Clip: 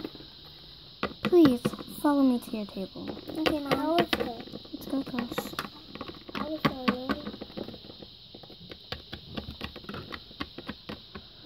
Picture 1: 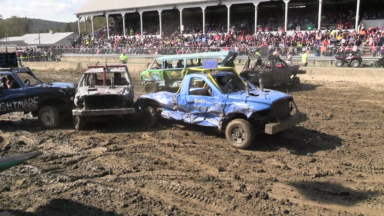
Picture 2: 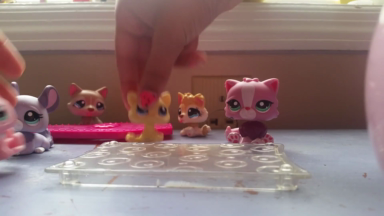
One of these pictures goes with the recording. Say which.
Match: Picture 2